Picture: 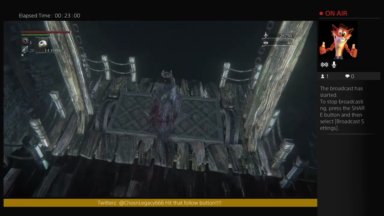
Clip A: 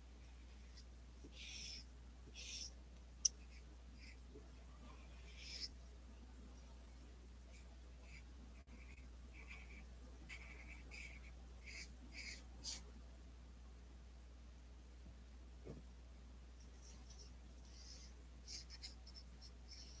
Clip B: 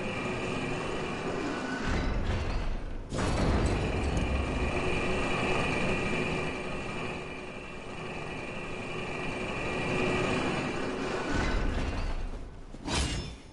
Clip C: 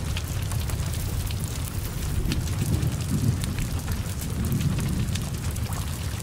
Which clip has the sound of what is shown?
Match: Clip B